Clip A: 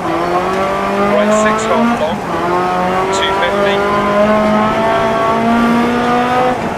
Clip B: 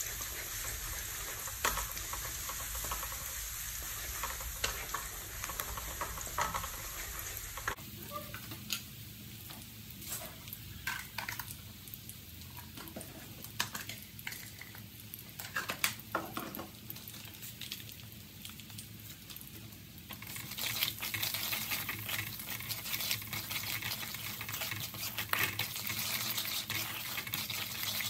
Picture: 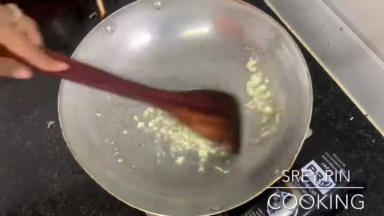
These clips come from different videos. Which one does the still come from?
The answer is B